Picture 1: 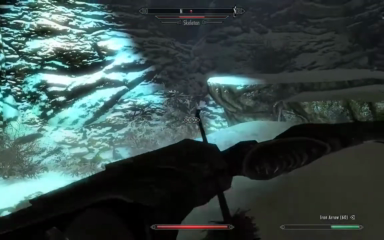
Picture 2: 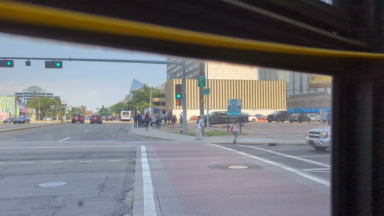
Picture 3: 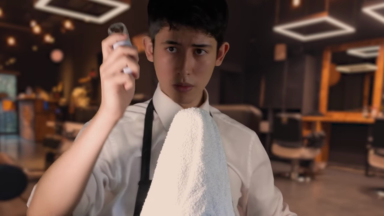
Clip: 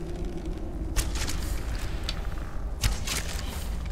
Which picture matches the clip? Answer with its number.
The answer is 1